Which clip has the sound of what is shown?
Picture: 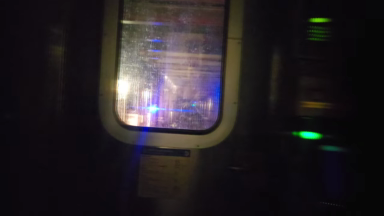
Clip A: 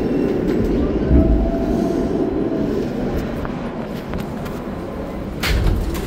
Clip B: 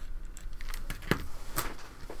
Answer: A